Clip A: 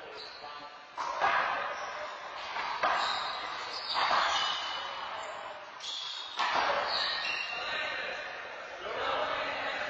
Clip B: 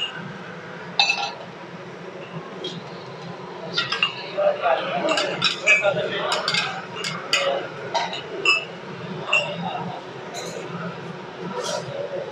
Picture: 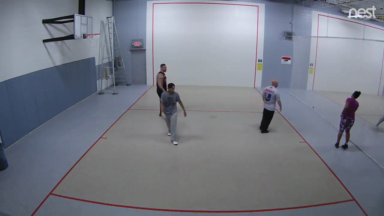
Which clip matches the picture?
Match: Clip A